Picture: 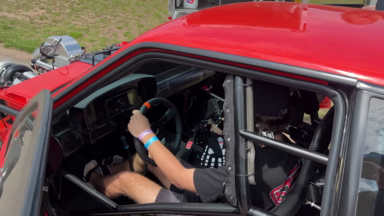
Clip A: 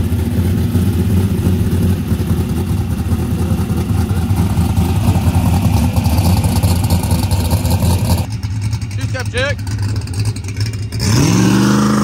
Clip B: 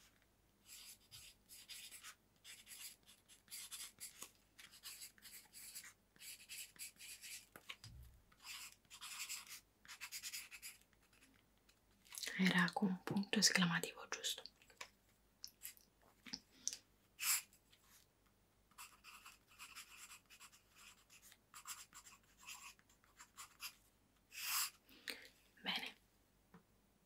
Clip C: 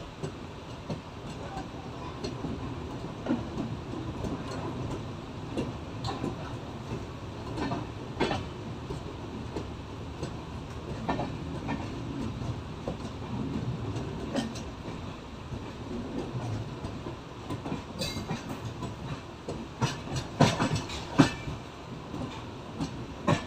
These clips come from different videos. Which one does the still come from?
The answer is A